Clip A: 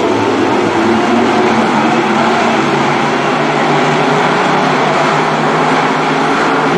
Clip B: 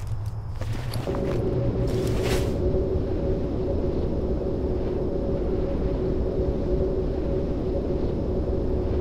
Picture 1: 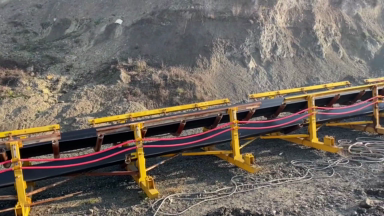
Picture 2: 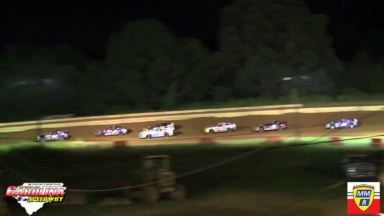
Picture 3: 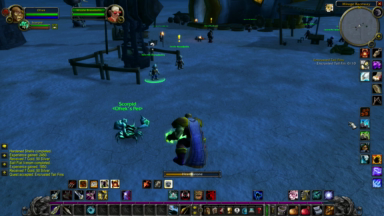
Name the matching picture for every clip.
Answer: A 2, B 3